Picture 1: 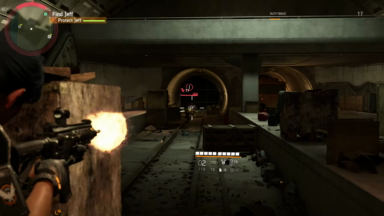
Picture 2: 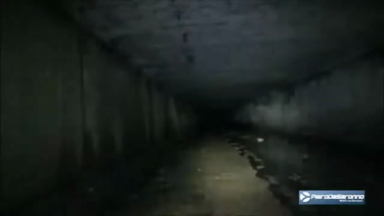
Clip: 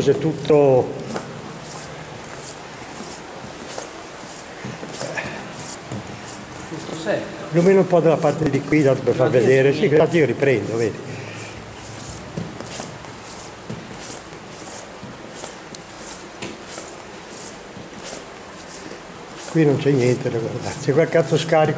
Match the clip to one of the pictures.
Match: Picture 2